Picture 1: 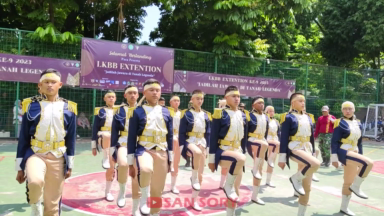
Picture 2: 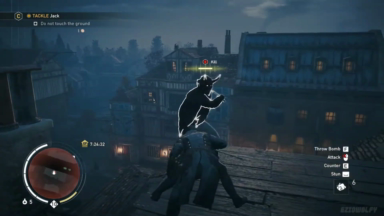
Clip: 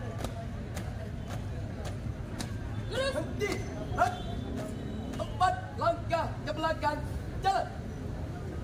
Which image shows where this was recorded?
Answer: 1